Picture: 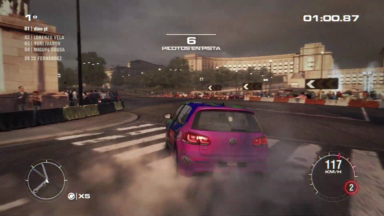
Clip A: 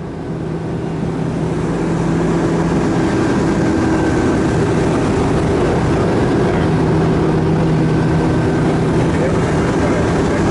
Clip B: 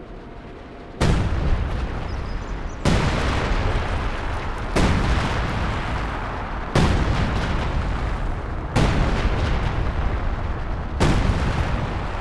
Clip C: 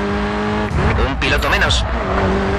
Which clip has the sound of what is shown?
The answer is C